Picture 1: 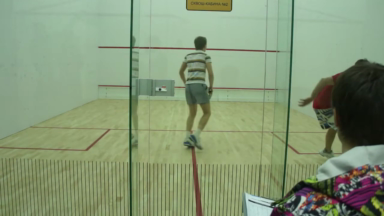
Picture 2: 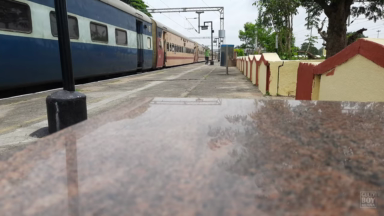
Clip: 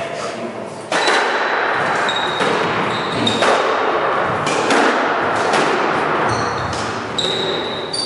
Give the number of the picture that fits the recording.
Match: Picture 1